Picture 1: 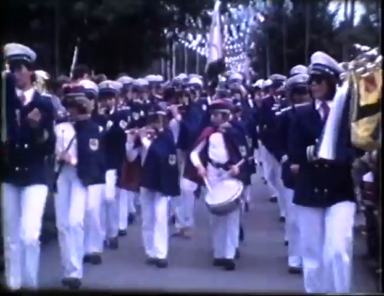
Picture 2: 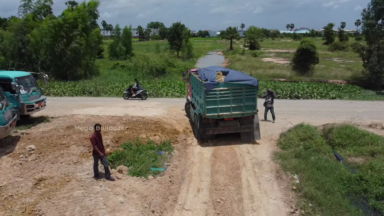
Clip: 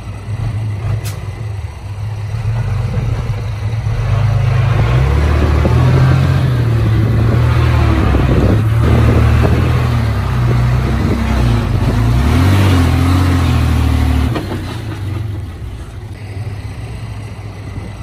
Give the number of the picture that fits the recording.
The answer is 2